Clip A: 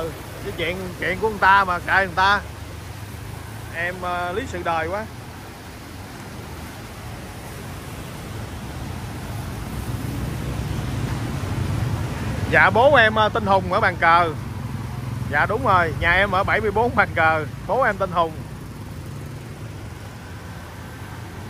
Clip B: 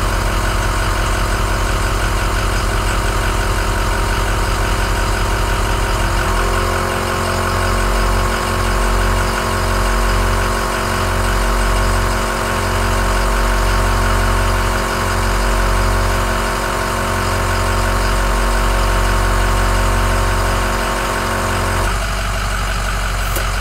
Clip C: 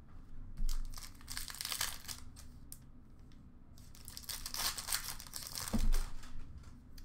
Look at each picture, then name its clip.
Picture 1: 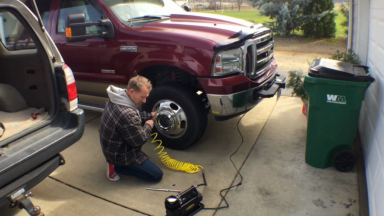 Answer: B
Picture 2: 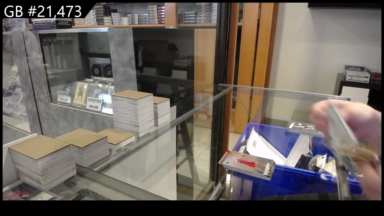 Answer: C